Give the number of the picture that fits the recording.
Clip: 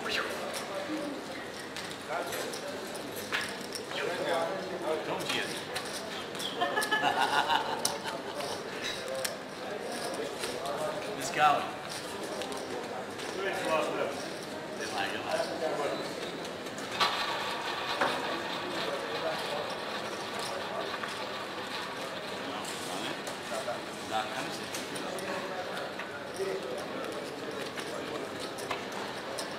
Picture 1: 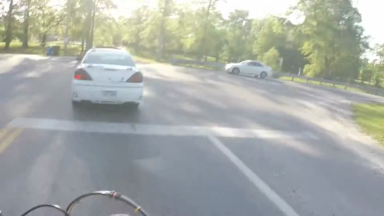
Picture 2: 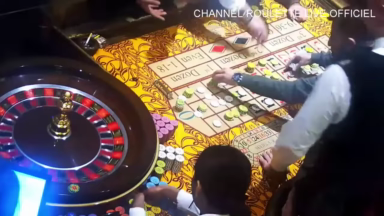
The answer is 2